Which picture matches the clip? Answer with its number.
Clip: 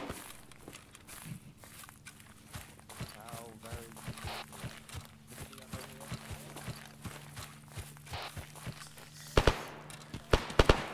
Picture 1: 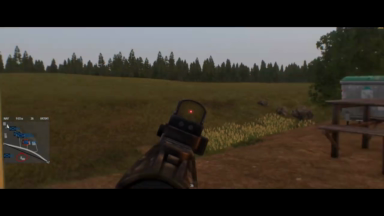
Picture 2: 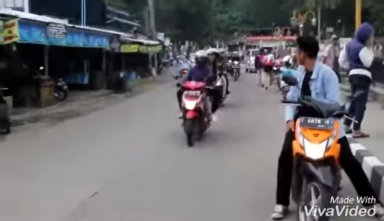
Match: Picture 1